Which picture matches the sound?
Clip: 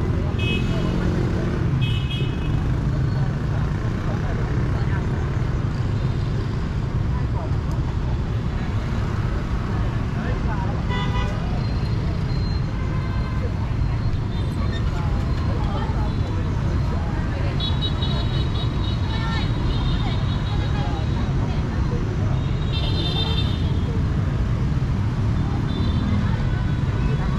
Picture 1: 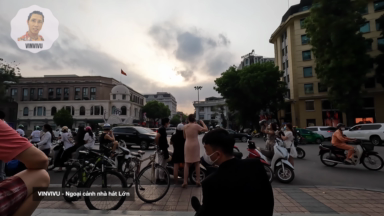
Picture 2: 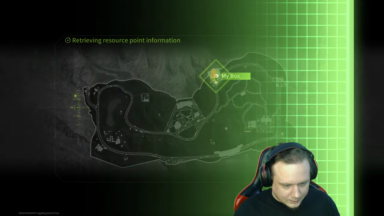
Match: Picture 1